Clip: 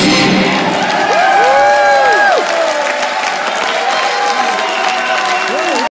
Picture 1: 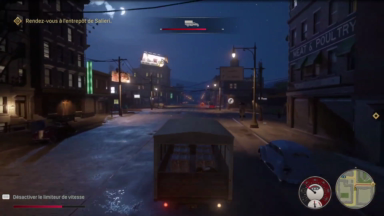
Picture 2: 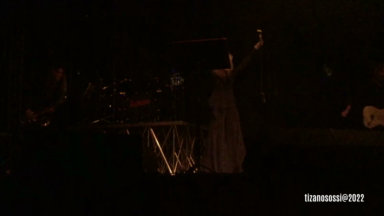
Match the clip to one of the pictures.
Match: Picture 2